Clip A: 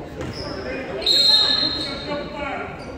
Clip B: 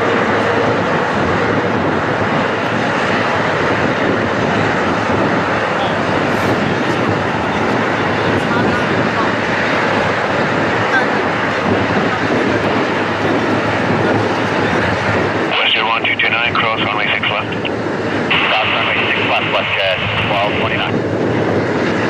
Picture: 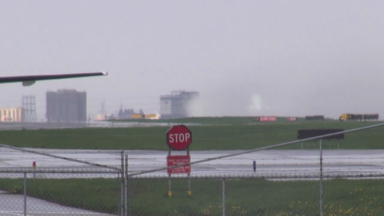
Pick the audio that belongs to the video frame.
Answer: B